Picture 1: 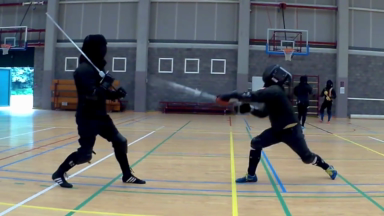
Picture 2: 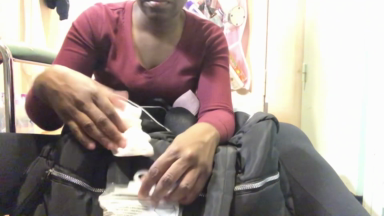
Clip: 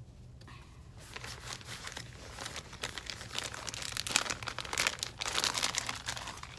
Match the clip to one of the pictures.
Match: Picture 2